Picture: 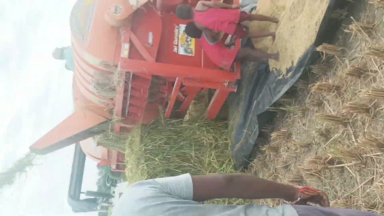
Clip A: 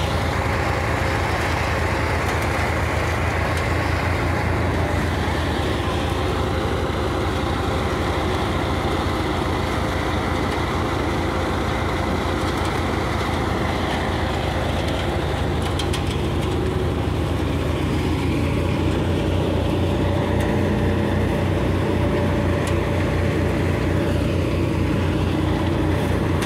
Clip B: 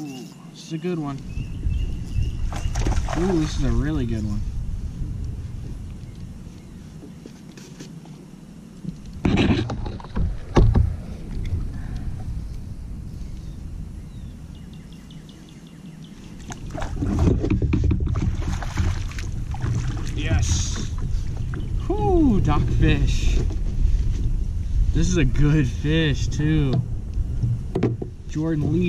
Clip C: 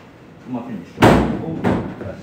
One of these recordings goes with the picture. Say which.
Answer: A